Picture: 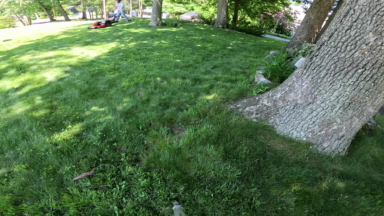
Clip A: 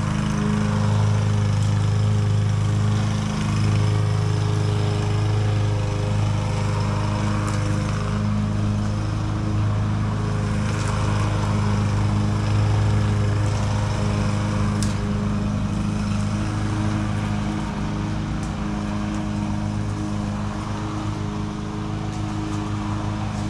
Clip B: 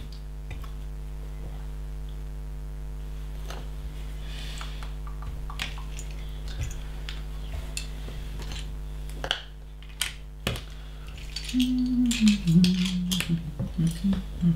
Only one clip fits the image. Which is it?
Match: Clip A